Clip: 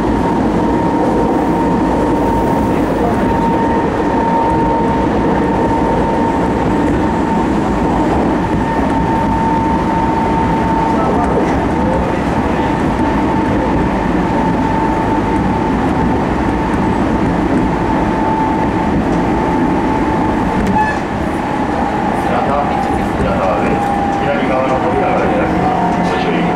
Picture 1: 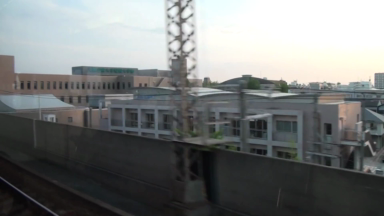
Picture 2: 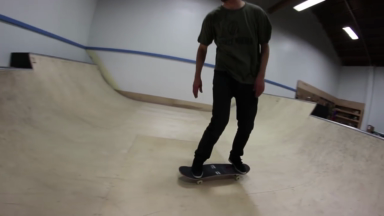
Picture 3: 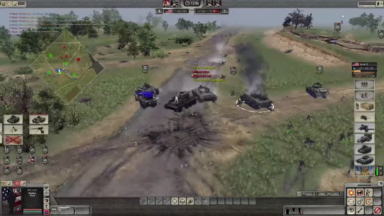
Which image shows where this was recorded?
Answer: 1